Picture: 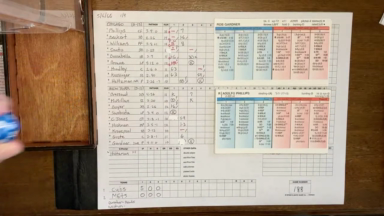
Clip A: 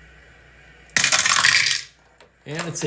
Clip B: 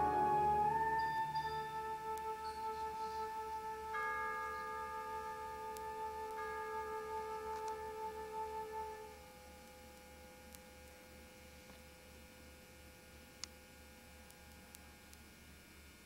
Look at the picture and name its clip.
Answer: A